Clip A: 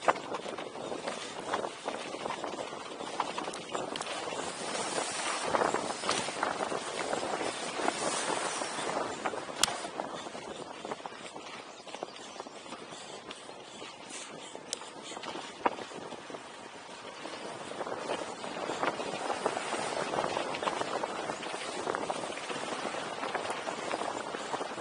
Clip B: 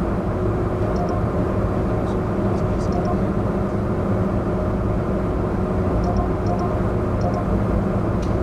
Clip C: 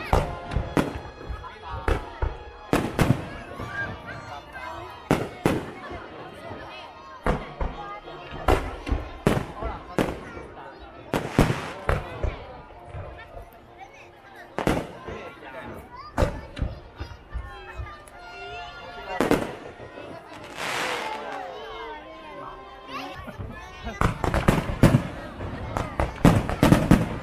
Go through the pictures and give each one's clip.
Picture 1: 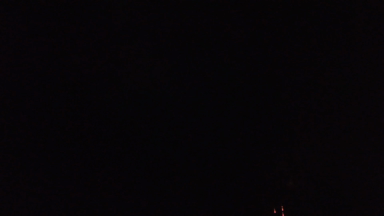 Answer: C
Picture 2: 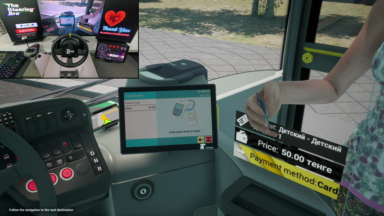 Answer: B